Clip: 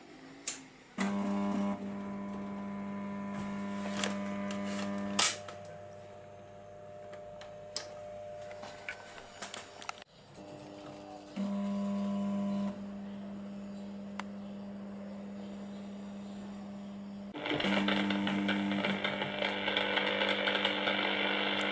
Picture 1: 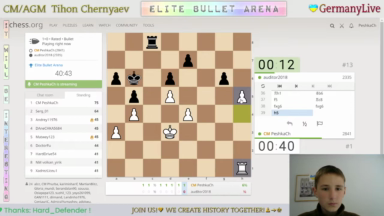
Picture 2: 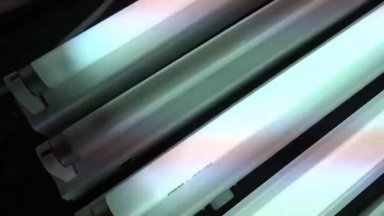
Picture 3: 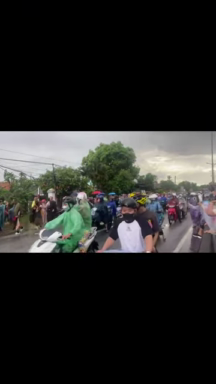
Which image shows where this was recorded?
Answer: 2